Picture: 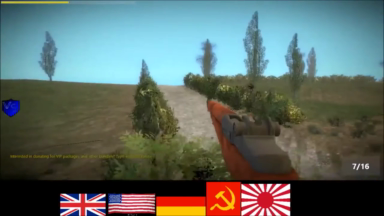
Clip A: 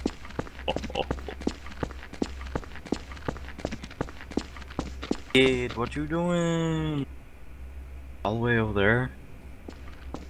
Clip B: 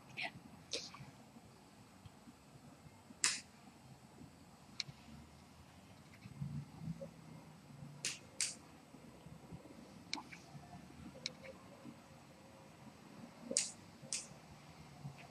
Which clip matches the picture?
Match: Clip A